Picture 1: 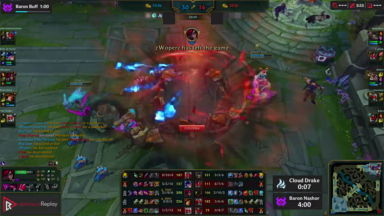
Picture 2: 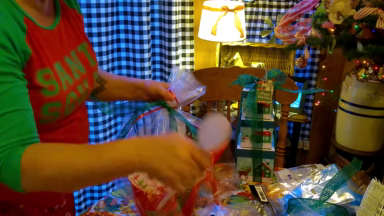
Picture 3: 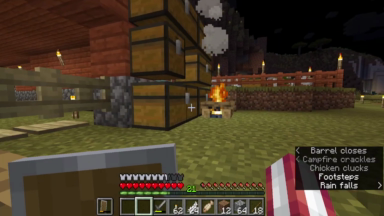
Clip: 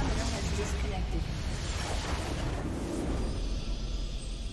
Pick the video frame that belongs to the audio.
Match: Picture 1